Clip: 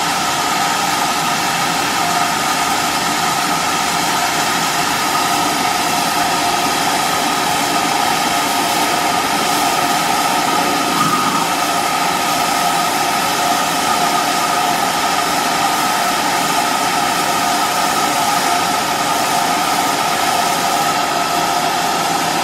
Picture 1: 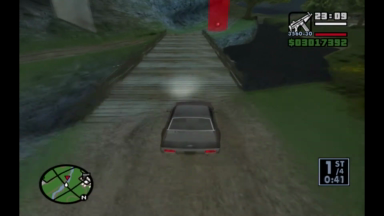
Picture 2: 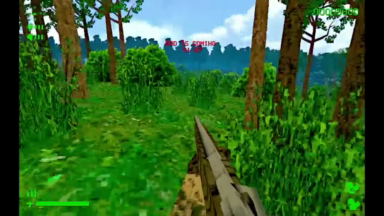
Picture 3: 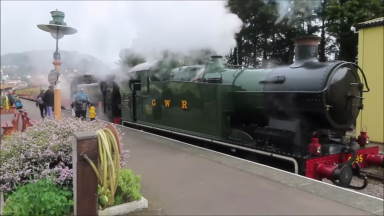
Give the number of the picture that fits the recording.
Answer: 3